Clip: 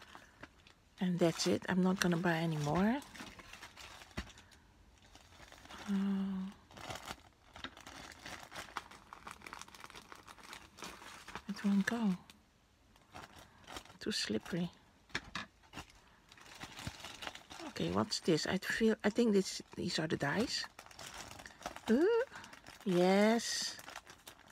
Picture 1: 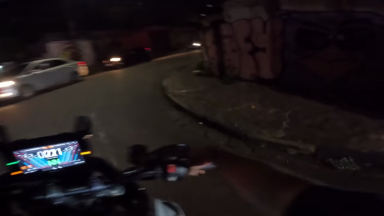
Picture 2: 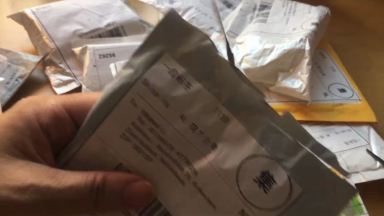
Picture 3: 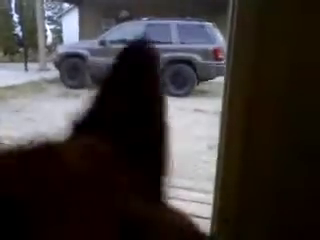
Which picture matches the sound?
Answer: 2